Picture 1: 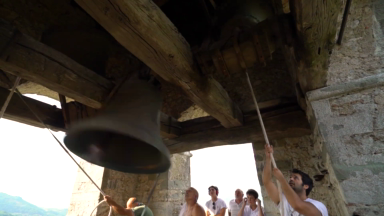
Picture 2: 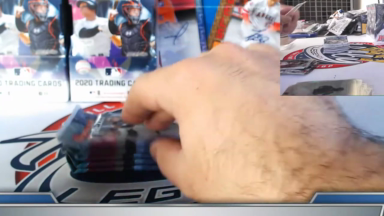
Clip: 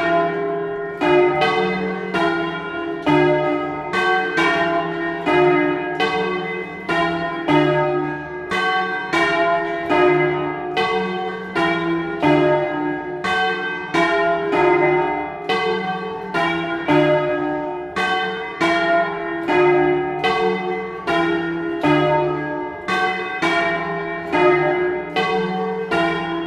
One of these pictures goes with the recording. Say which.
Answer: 1